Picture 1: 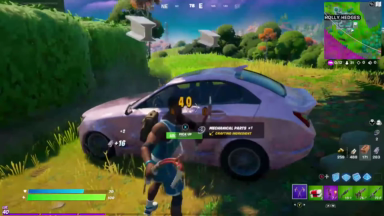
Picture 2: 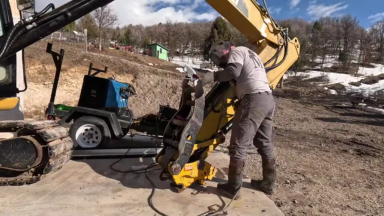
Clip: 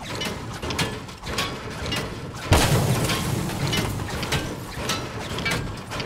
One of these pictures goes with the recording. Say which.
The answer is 1